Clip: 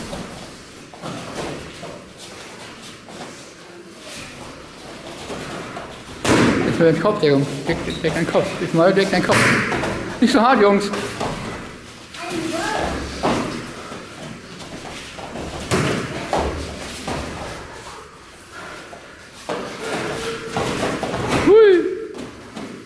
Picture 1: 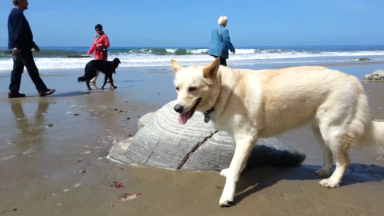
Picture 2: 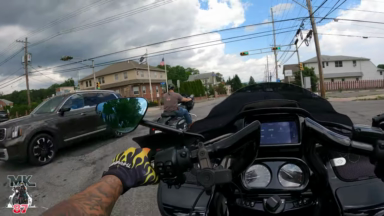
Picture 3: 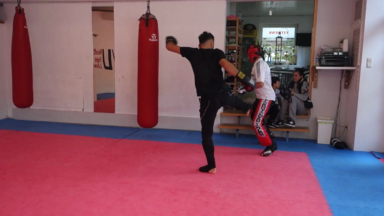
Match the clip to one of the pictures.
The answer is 3